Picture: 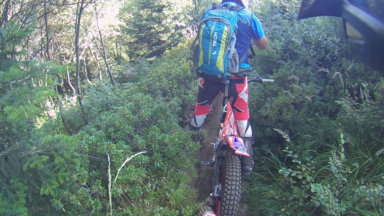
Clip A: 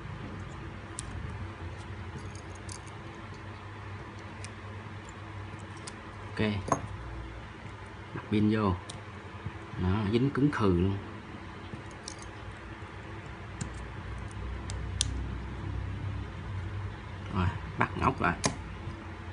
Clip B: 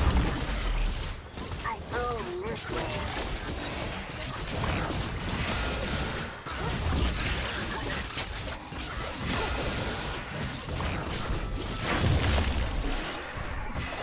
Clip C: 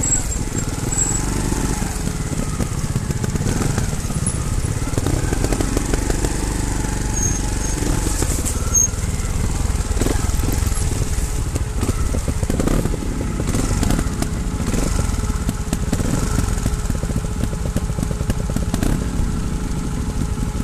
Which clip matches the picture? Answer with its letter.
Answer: C